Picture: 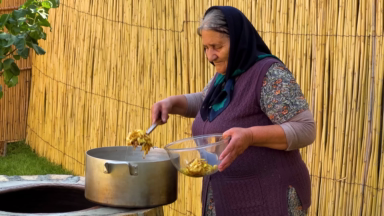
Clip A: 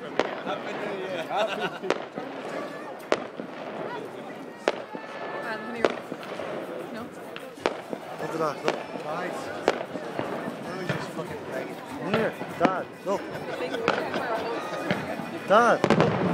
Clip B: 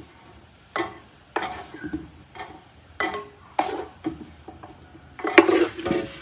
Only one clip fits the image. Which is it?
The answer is B